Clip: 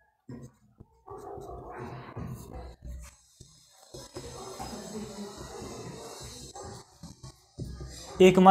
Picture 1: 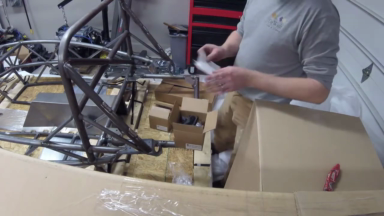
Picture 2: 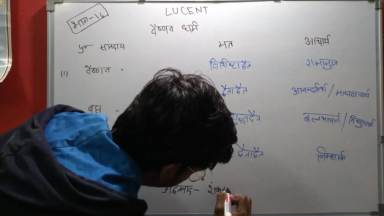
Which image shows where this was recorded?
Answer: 2